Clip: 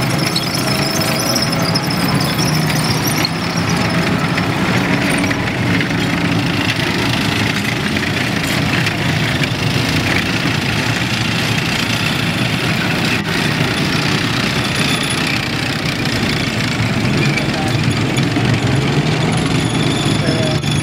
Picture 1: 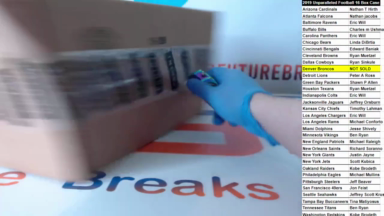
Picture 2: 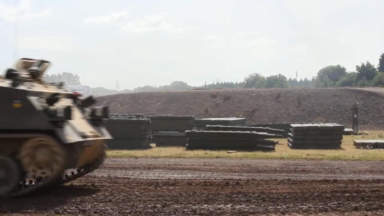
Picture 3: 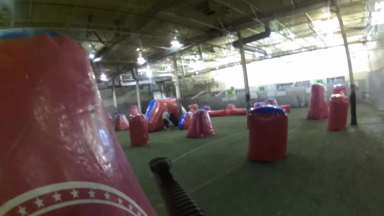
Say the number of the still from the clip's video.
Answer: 2